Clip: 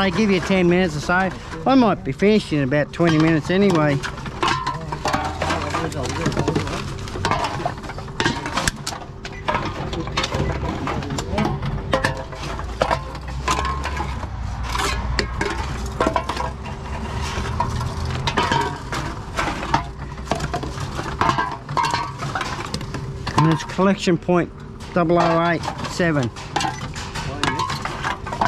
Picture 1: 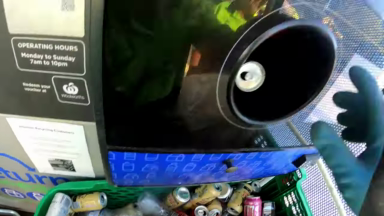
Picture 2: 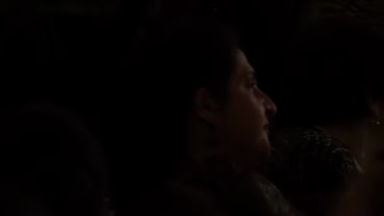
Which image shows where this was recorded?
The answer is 1